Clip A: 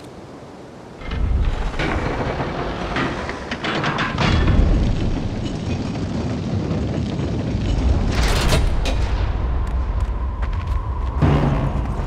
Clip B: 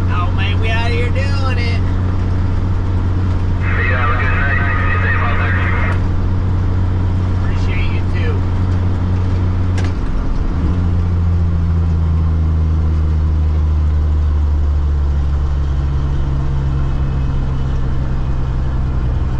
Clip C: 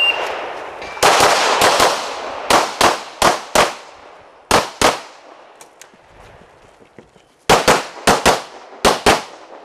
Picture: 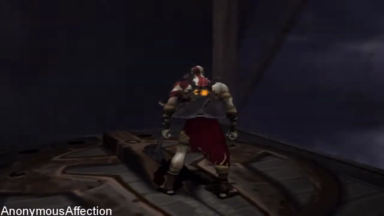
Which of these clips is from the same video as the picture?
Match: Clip A